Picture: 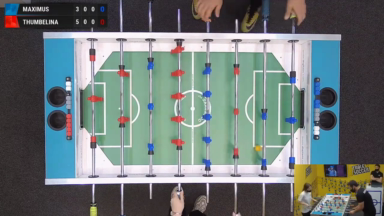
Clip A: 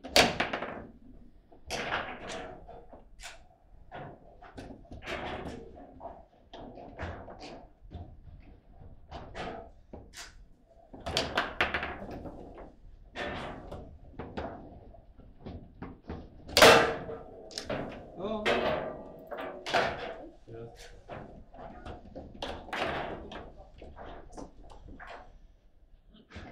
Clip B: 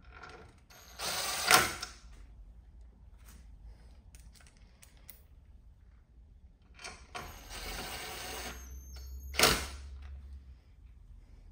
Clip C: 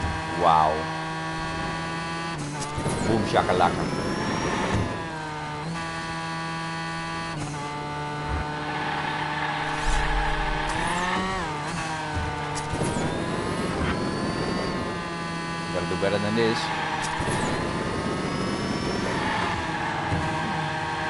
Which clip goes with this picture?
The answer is A